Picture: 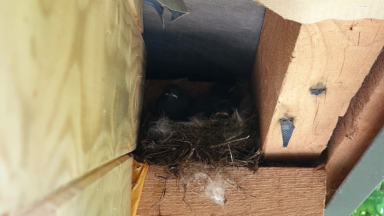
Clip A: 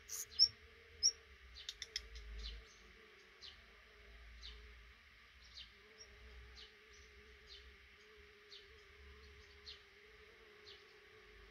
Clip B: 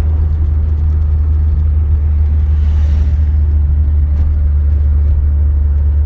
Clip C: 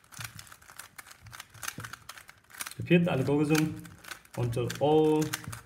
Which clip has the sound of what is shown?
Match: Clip A